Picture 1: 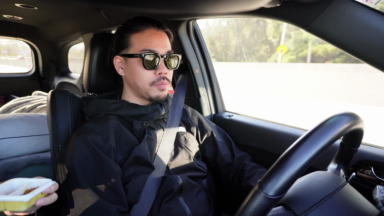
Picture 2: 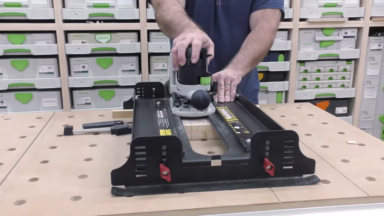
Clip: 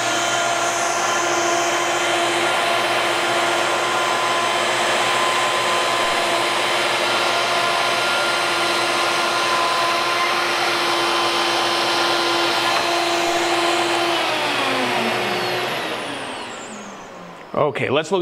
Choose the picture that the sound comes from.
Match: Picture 2